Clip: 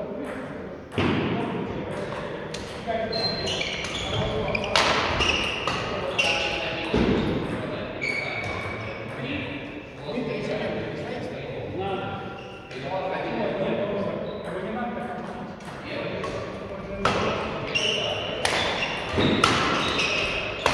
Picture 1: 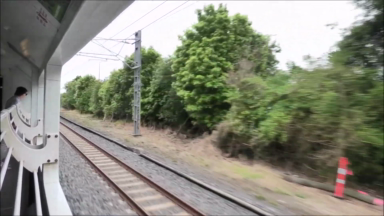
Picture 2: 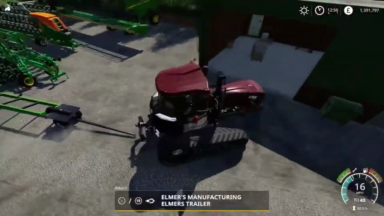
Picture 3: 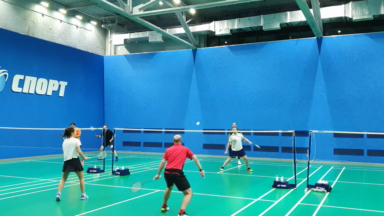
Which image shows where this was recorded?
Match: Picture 3